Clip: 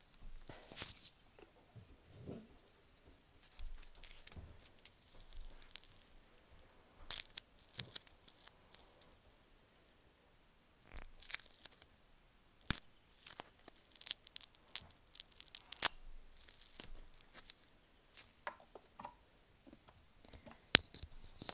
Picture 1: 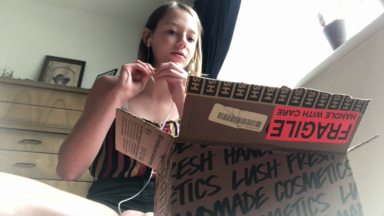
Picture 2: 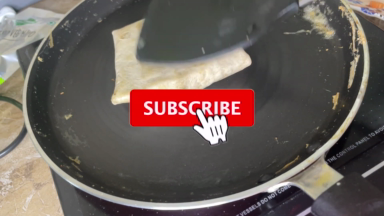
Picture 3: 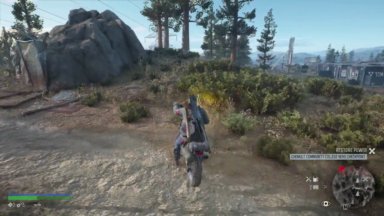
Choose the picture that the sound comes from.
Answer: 1